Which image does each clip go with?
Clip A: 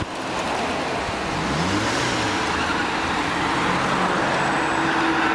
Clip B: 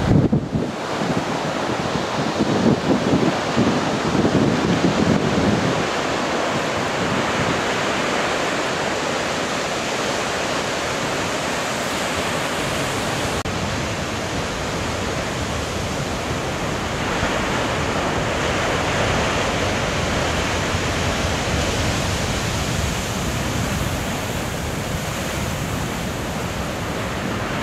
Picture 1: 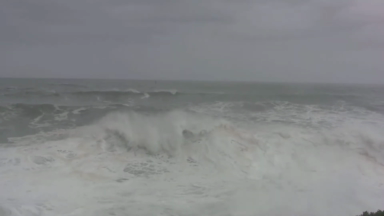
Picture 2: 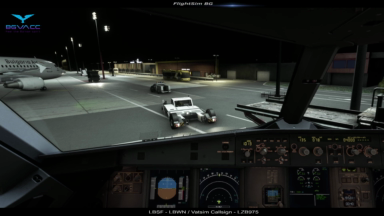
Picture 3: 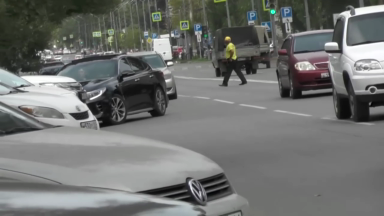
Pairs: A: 3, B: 1